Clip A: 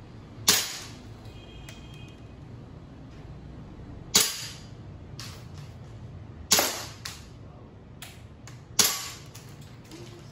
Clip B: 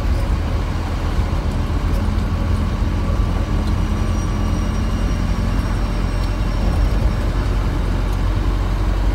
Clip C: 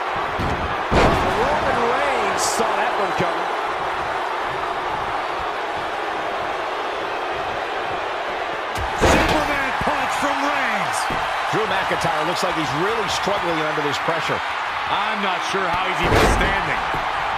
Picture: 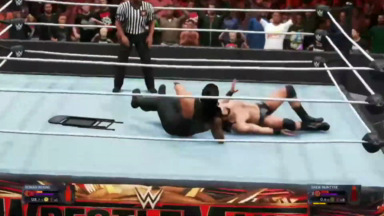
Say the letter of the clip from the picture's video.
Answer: C